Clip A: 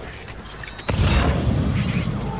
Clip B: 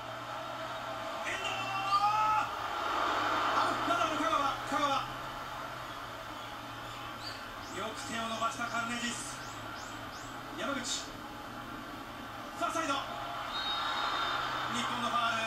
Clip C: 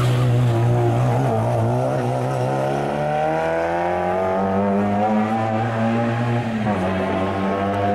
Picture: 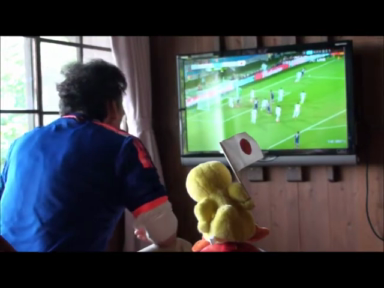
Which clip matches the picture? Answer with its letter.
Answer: B